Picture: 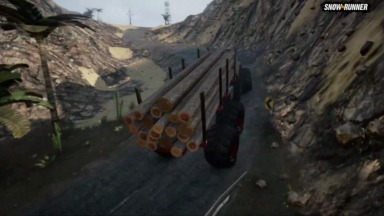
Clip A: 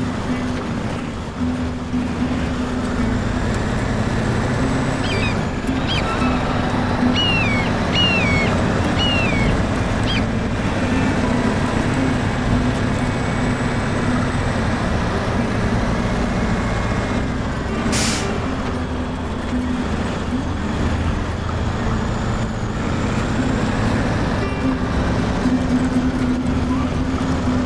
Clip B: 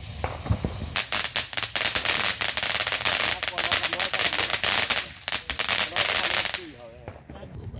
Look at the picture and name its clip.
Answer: A